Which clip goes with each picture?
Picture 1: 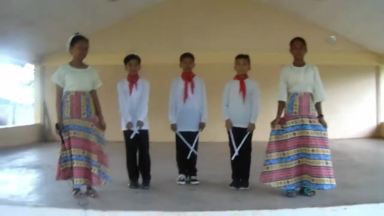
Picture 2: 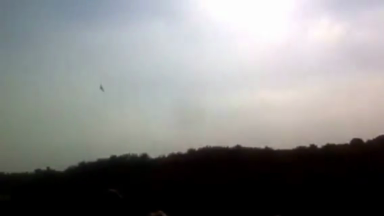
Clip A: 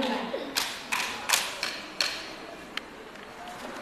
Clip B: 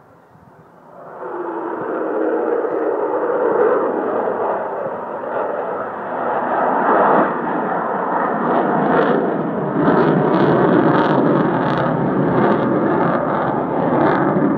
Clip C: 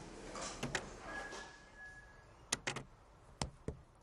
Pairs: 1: A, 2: B